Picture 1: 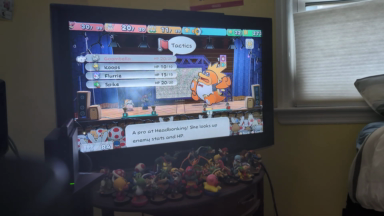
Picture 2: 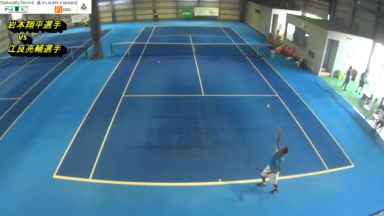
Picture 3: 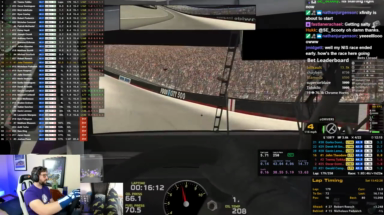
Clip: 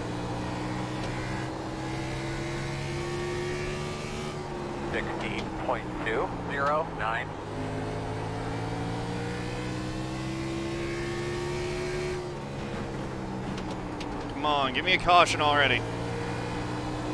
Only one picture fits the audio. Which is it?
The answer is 3